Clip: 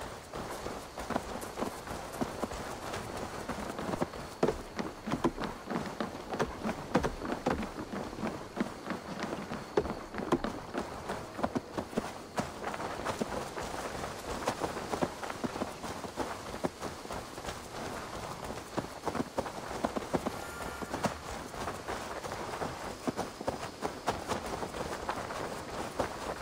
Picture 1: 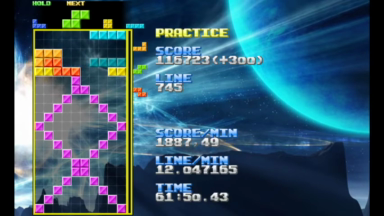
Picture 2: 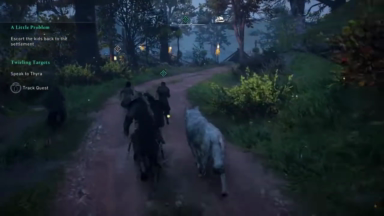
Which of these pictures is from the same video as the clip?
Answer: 2